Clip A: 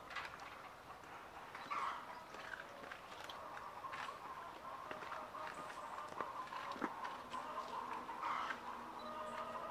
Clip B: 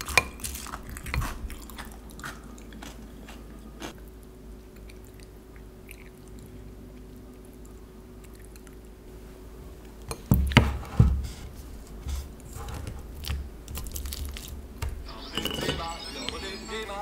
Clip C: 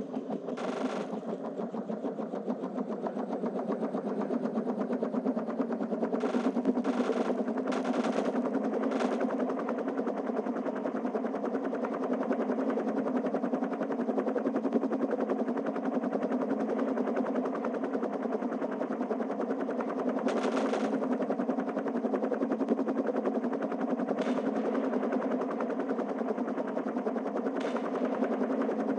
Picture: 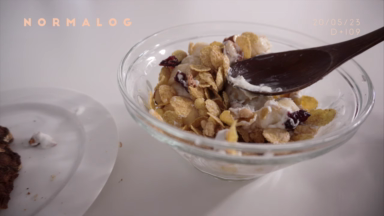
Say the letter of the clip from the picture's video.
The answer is B